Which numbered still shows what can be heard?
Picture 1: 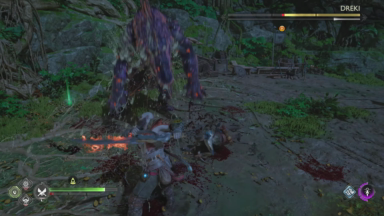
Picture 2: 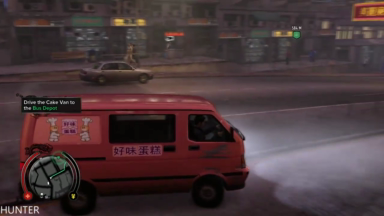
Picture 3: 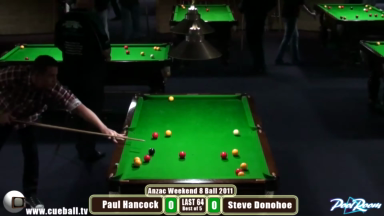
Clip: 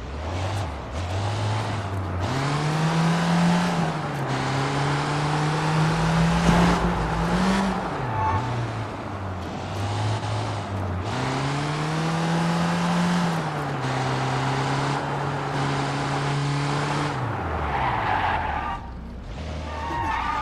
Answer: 2